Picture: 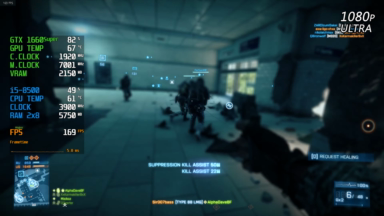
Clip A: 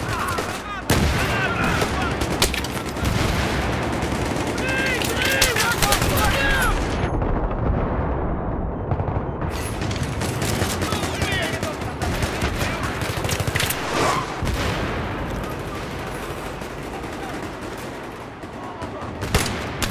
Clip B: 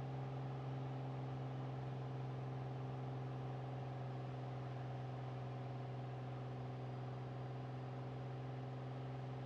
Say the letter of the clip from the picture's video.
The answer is A